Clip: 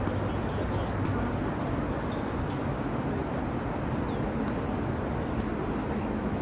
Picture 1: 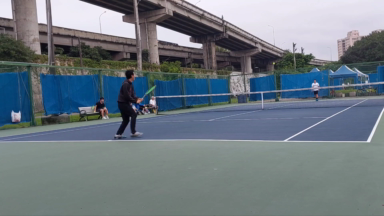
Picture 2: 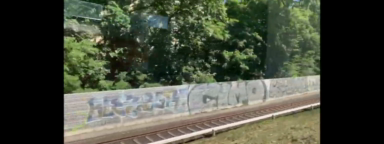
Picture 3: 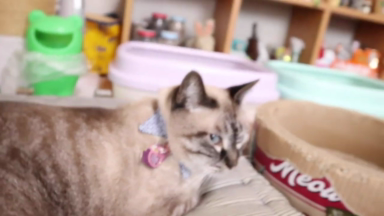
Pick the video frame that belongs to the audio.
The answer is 1